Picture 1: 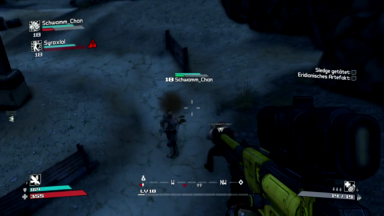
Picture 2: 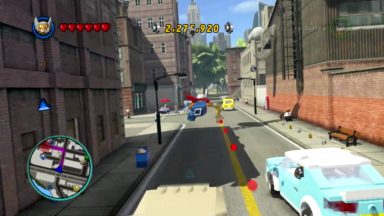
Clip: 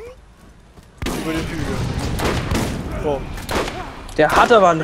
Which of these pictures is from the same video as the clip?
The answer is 1